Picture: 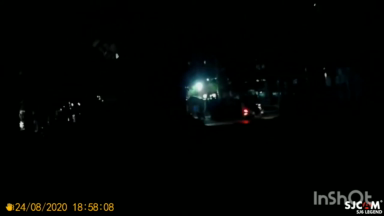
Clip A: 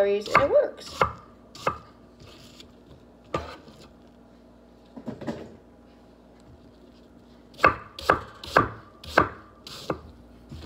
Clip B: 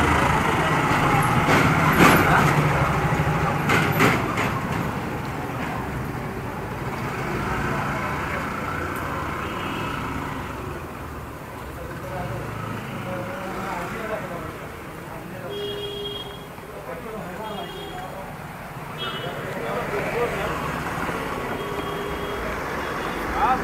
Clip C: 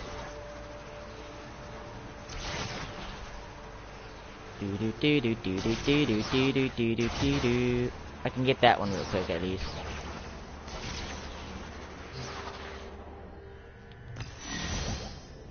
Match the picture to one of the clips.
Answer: B